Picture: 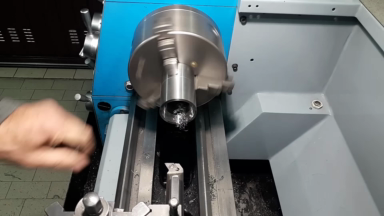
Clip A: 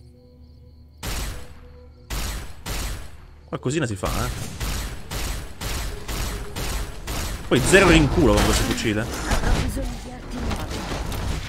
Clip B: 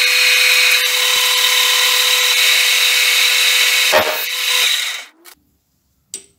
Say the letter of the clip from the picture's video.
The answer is B